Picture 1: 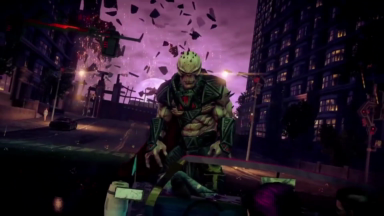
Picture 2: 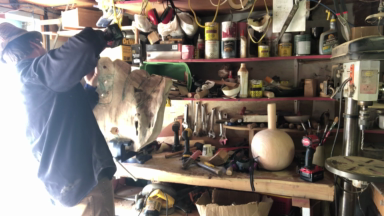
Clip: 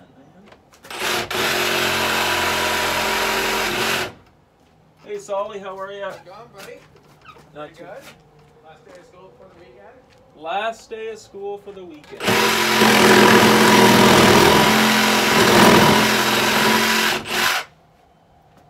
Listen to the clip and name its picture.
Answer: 2